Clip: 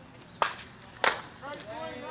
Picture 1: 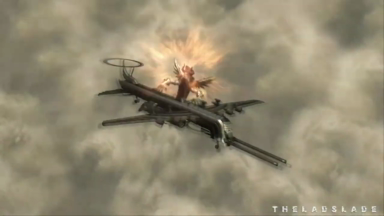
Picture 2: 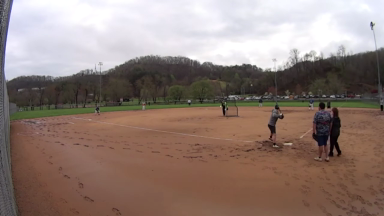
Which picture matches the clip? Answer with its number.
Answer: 2